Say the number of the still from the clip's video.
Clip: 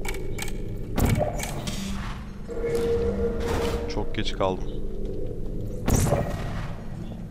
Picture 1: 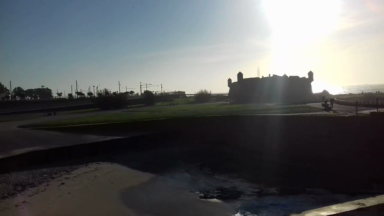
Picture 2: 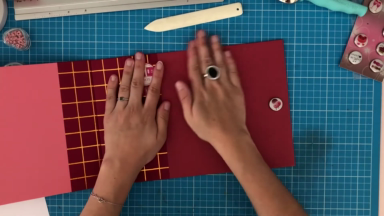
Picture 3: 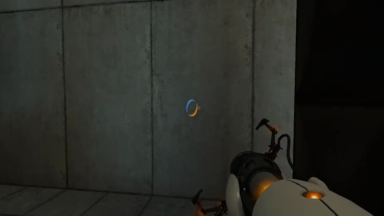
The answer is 3